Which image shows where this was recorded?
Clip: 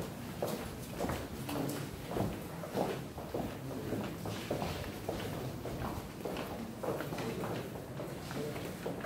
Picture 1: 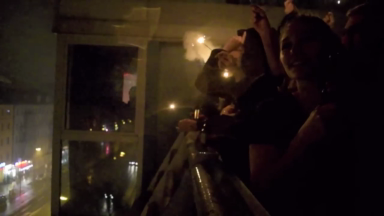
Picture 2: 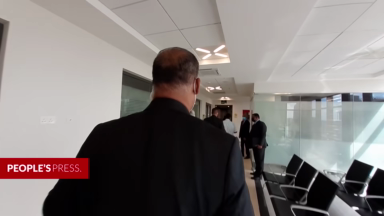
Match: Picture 2